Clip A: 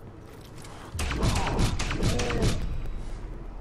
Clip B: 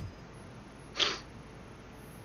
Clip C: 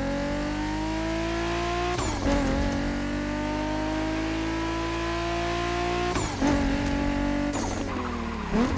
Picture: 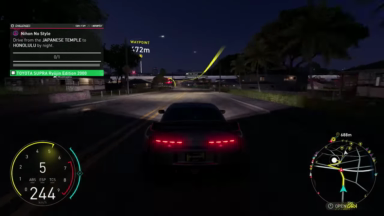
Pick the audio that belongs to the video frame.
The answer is C